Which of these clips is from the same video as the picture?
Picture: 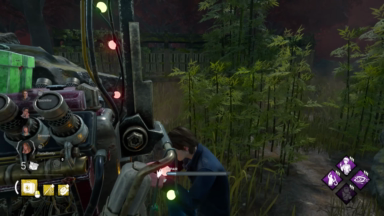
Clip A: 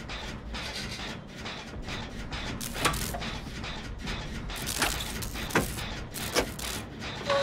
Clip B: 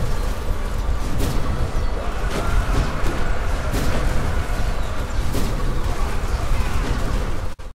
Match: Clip A